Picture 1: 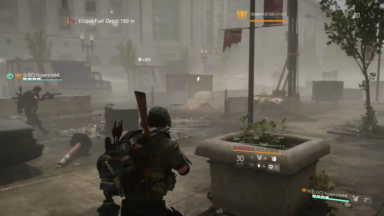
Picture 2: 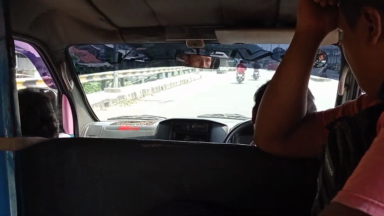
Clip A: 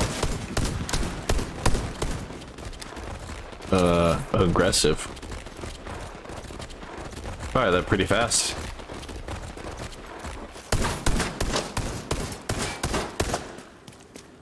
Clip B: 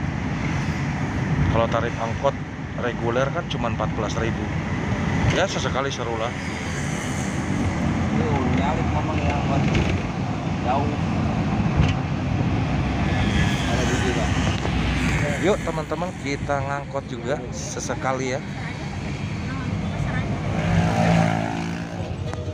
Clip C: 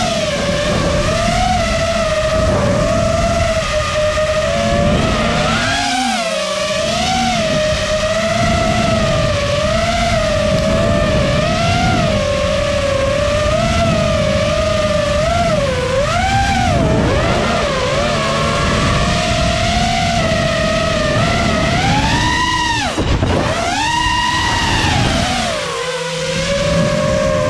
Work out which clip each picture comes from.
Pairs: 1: A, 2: B